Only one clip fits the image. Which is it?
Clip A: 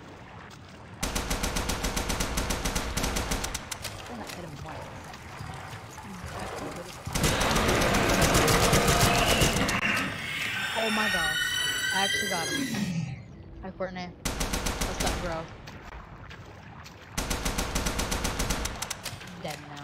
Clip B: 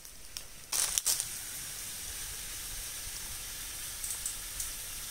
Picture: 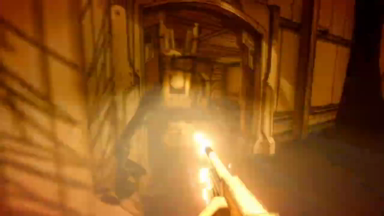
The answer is A